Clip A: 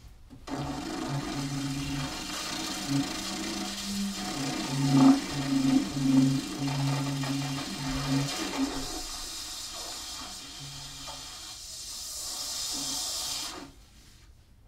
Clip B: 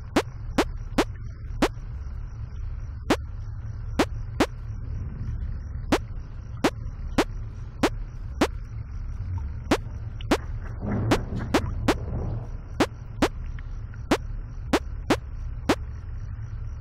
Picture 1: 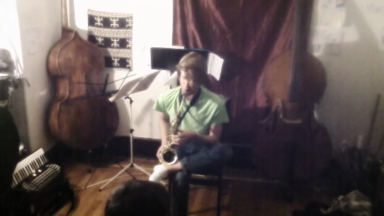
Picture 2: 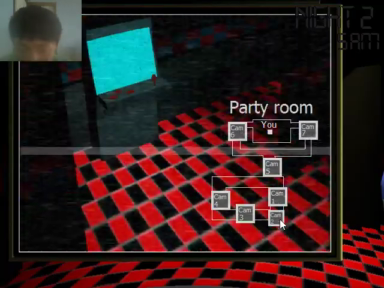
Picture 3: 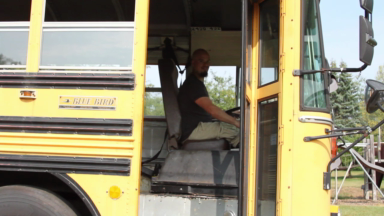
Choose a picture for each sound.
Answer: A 1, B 2